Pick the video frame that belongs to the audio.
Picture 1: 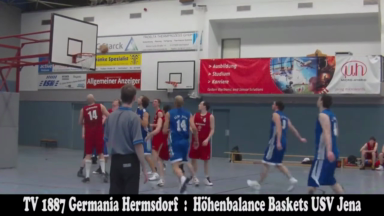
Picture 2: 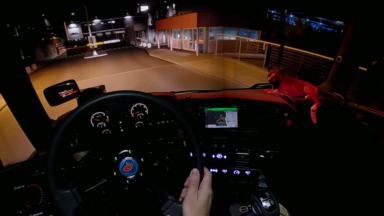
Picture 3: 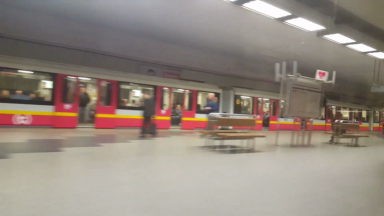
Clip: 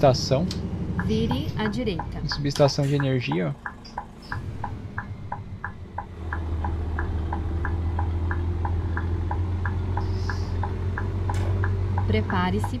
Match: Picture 2